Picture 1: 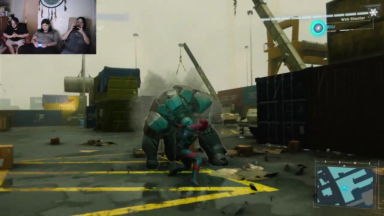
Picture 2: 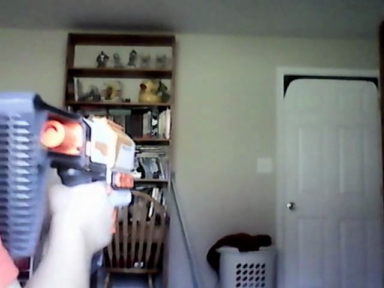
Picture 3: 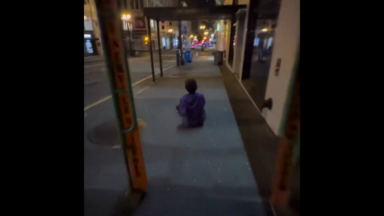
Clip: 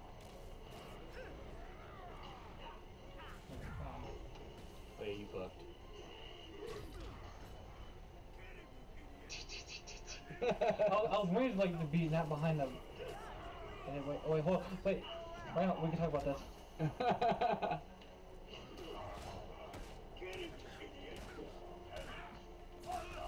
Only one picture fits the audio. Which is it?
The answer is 1